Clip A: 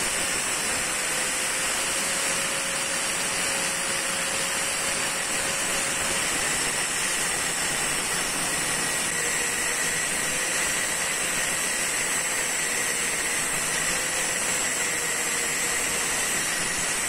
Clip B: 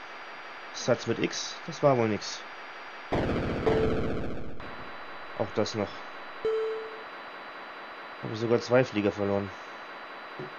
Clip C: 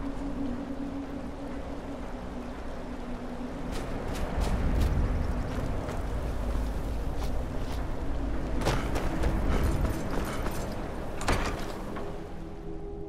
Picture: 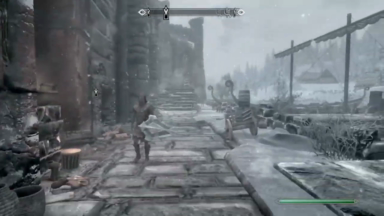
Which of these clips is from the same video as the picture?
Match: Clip C